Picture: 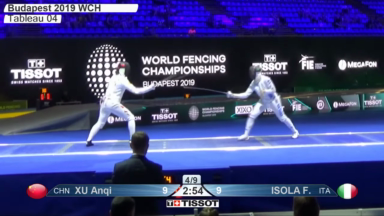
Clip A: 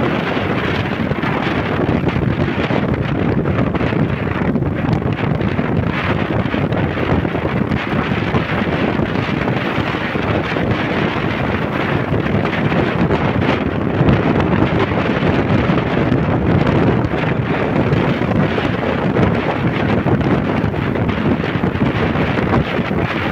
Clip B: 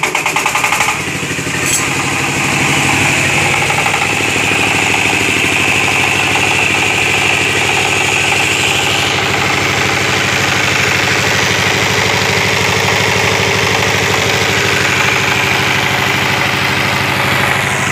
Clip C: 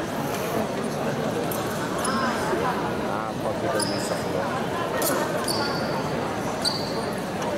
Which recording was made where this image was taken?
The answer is C